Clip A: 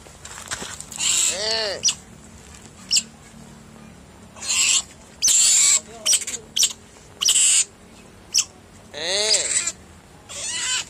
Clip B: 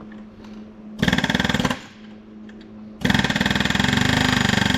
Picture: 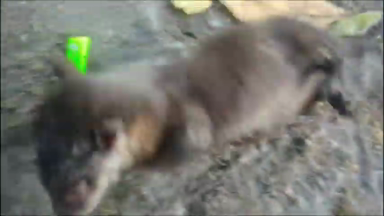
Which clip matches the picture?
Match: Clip A